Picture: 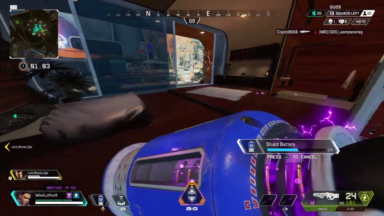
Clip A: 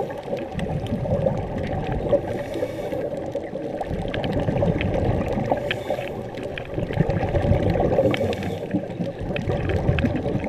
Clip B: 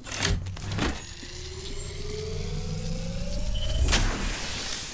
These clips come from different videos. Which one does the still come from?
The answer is B